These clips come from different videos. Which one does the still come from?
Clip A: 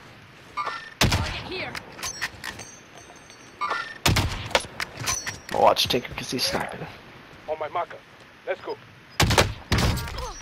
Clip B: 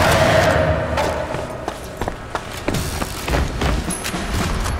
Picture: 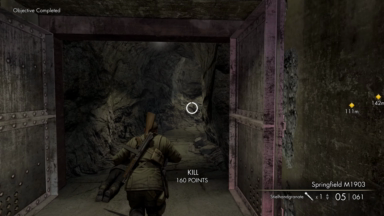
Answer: B